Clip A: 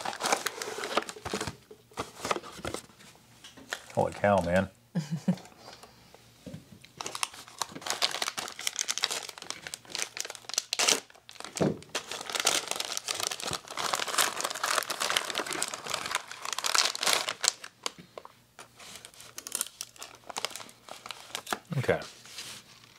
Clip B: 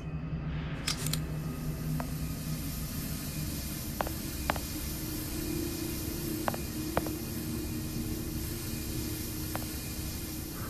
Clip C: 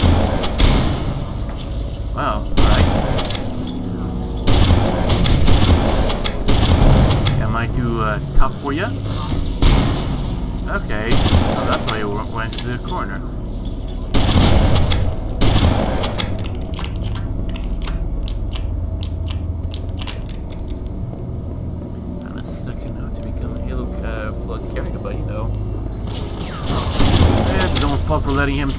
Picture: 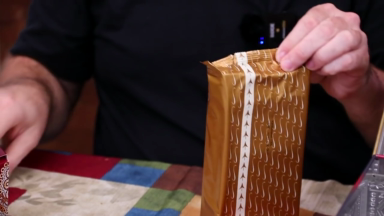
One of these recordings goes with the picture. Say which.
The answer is A